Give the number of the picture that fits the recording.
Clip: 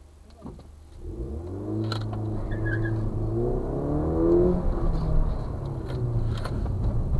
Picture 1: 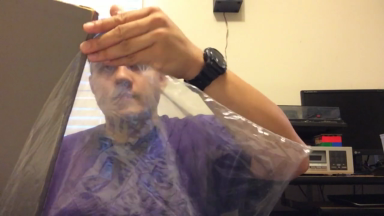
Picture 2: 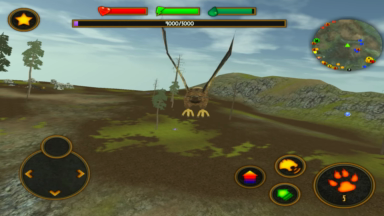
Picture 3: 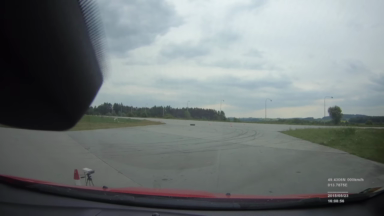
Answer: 3